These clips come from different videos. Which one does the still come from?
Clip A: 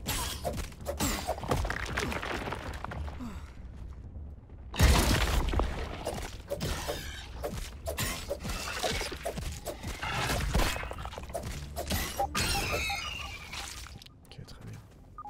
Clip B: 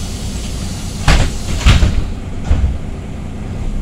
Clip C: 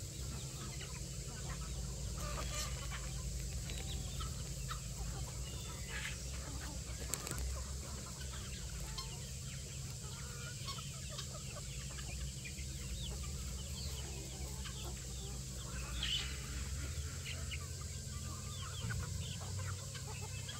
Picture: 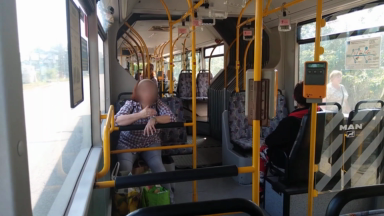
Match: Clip B